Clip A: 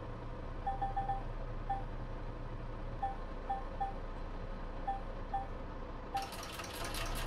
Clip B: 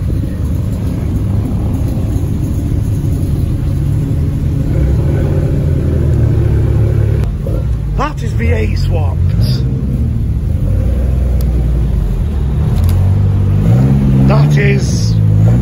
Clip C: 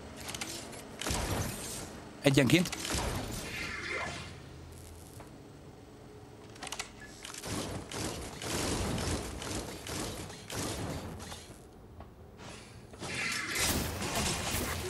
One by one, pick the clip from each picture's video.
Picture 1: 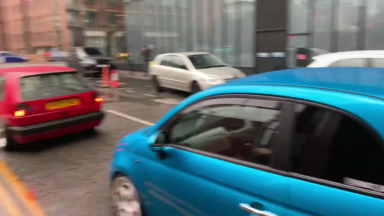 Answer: B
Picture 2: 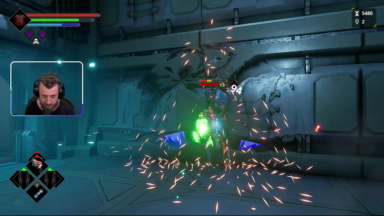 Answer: C